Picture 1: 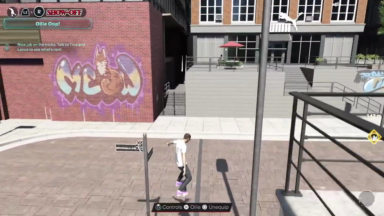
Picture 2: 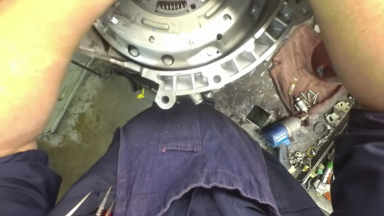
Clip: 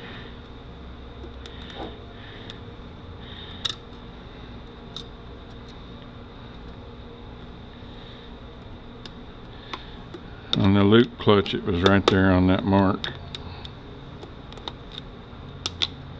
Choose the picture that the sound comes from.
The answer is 2